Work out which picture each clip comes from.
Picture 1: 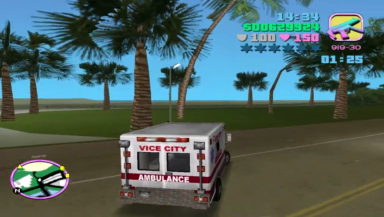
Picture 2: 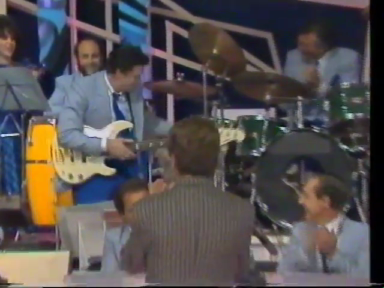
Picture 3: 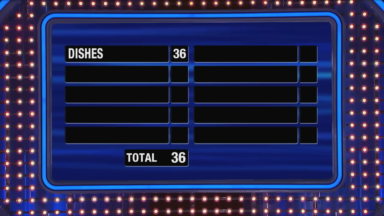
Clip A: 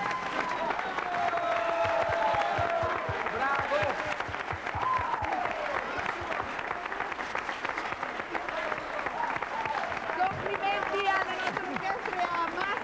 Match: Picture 2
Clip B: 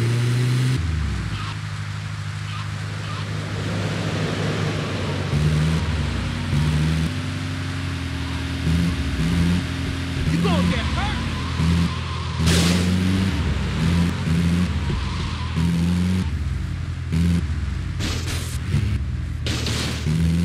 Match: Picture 1